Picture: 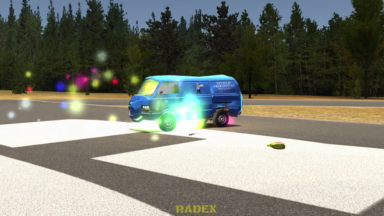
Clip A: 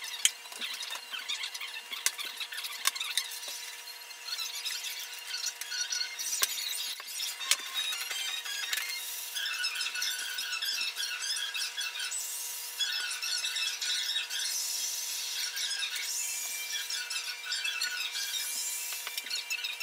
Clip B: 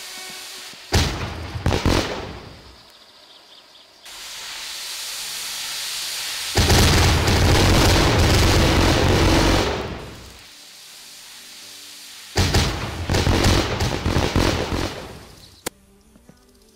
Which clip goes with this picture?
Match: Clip B